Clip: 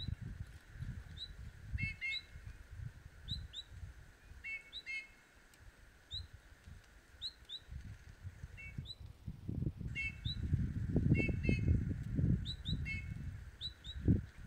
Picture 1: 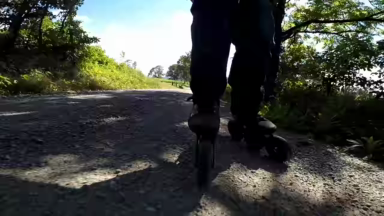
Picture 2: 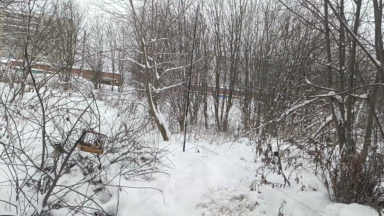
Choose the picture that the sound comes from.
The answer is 2